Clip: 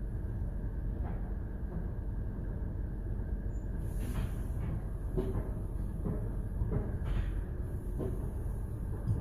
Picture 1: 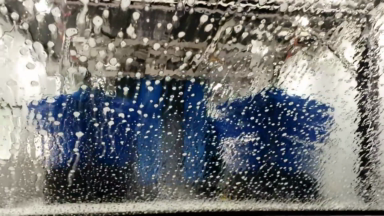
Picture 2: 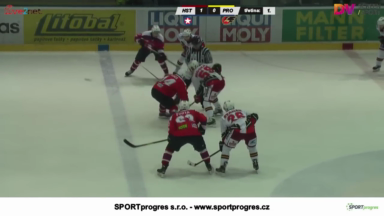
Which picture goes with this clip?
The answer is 1